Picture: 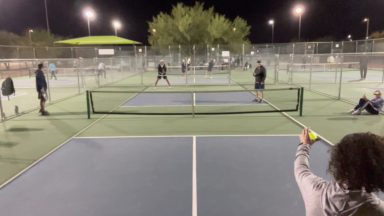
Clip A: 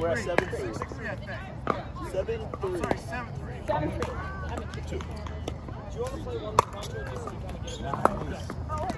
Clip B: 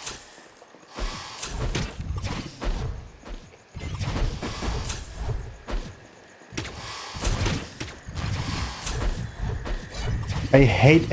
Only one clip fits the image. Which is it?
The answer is A